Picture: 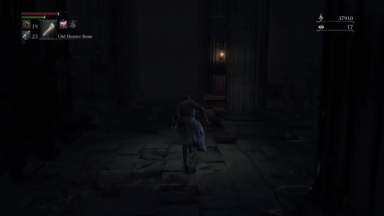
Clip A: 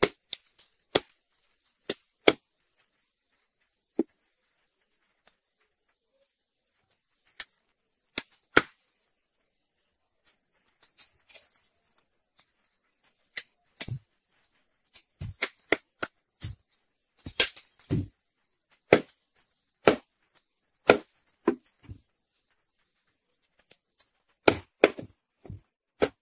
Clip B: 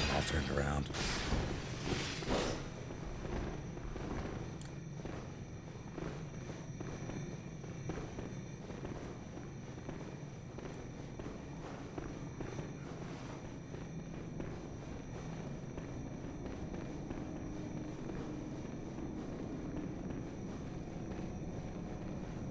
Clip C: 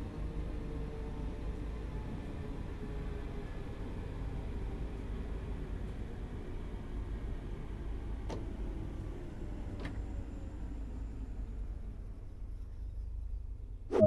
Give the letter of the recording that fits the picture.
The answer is B